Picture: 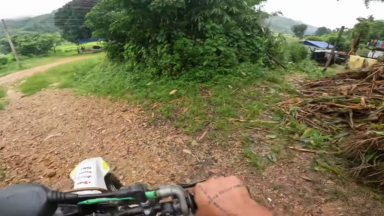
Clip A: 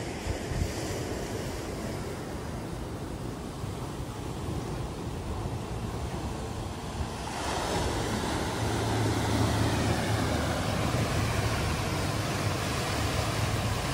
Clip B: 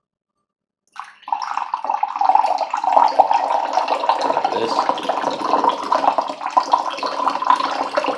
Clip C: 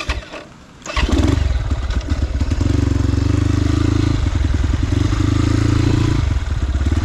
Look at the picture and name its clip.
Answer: C